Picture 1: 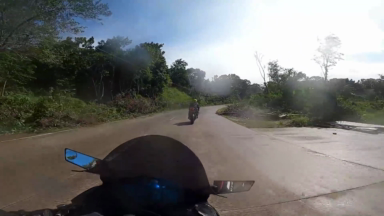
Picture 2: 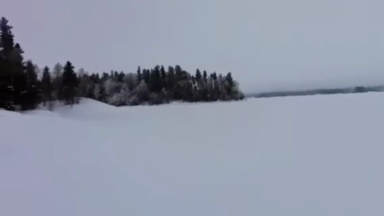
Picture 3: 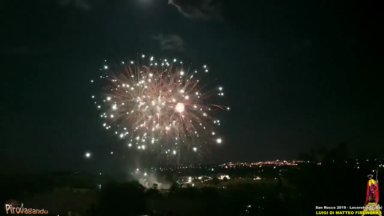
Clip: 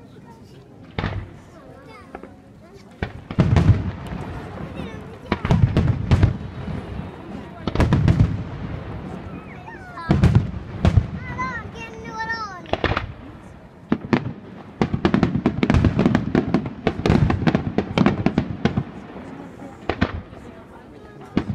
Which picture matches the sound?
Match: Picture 3